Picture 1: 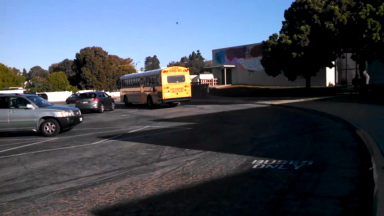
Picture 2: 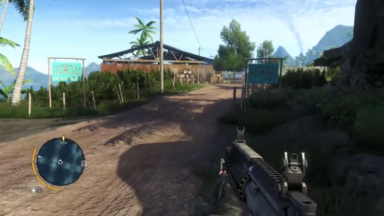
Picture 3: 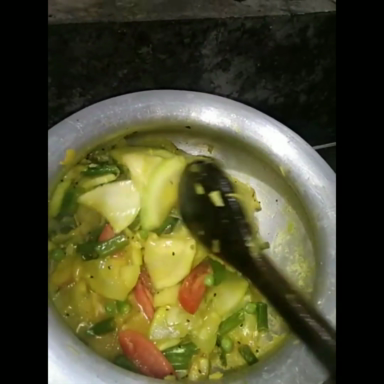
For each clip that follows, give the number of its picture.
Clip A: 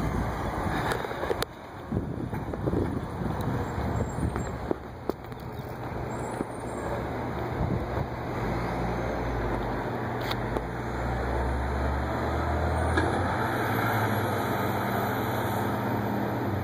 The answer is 1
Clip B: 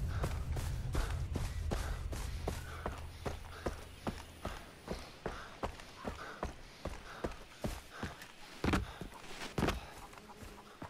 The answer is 2